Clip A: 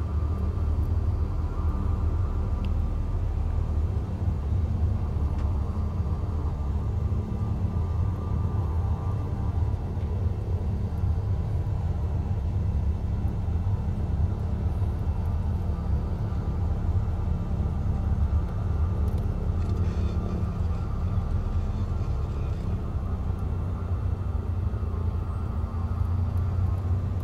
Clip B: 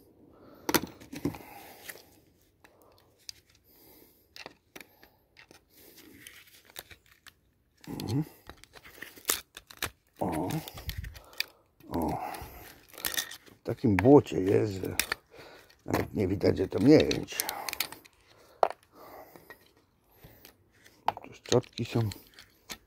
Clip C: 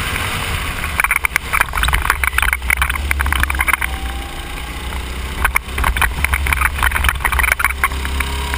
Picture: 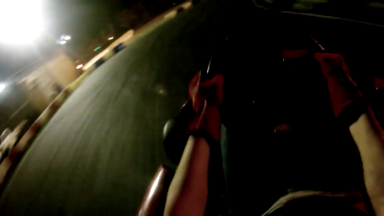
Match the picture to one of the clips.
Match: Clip C